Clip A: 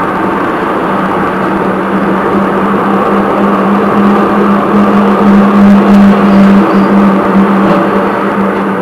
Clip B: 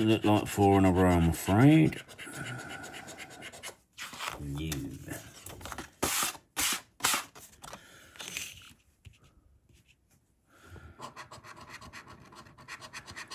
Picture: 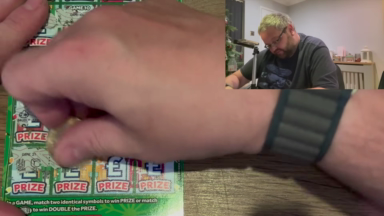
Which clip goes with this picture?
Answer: B